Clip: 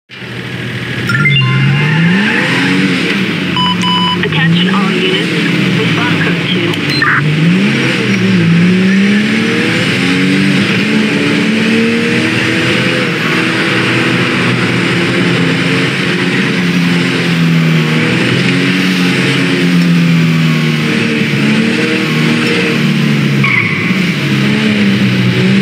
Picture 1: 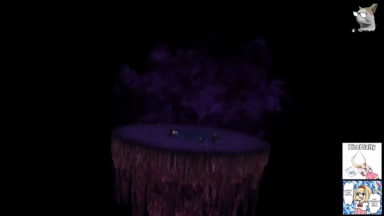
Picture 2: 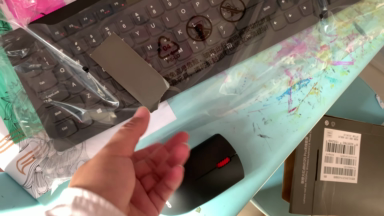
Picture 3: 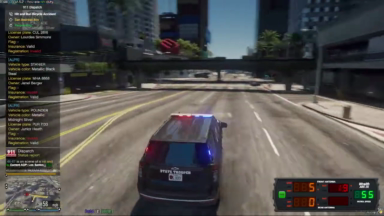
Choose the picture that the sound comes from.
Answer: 3